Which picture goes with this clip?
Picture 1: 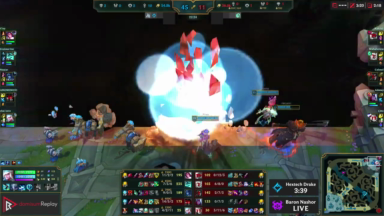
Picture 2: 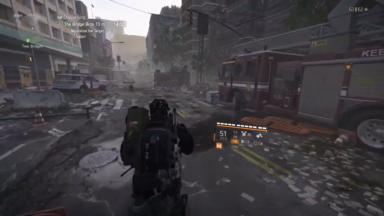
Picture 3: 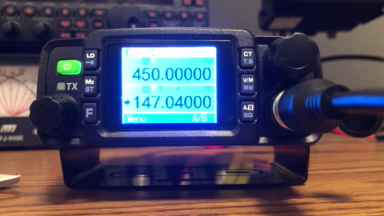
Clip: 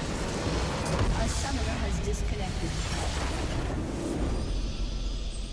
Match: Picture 1